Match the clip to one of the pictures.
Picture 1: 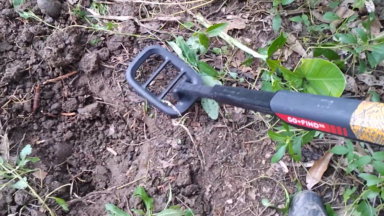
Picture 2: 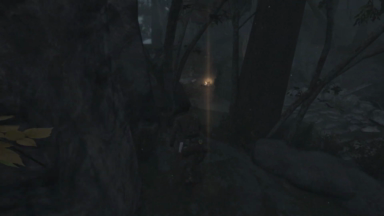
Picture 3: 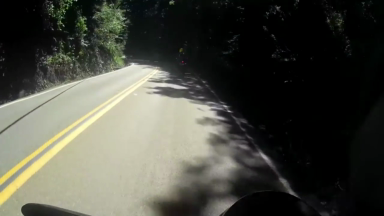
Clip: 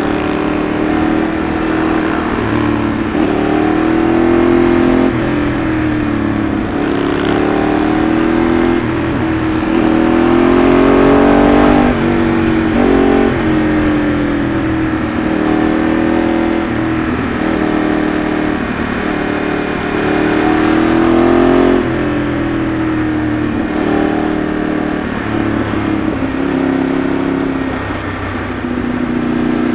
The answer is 3